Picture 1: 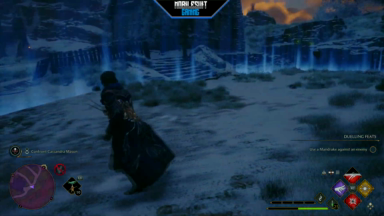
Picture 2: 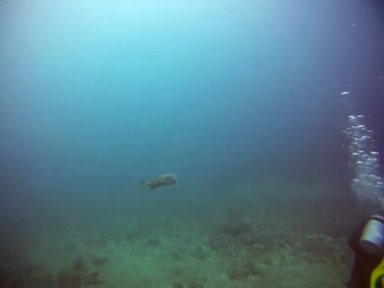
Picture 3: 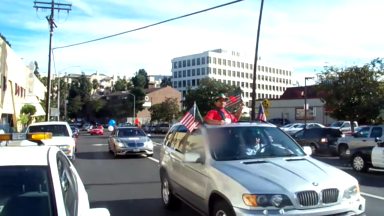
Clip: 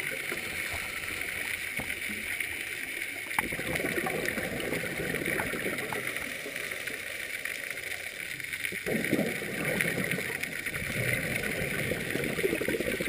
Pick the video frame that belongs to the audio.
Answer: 2